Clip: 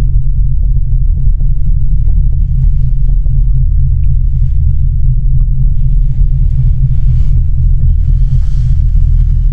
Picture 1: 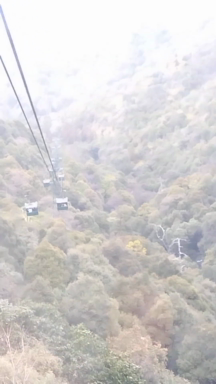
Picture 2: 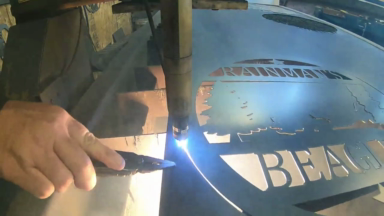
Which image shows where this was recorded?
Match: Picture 1